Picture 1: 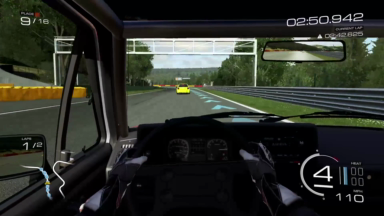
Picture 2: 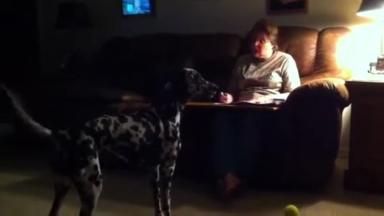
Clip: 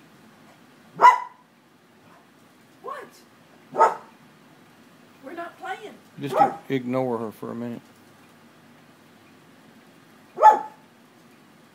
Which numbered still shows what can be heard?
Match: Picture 2